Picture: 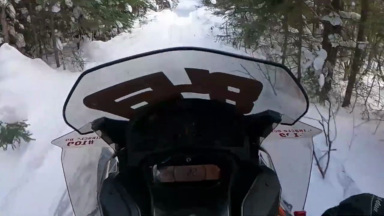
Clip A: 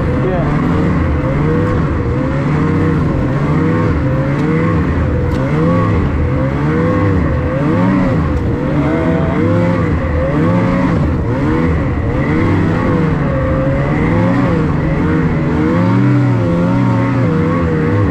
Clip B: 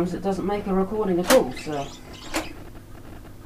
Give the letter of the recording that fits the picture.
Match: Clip A